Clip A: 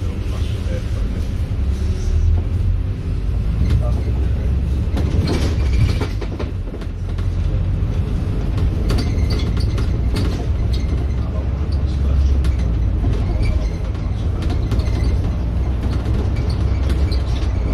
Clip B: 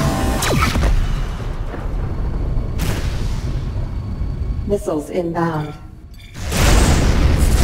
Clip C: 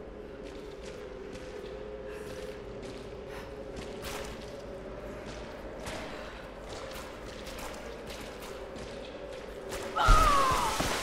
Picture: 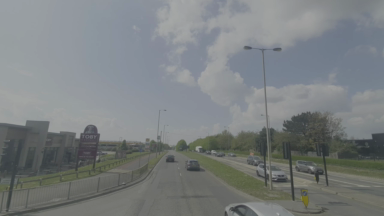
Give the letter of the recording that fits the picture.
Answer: A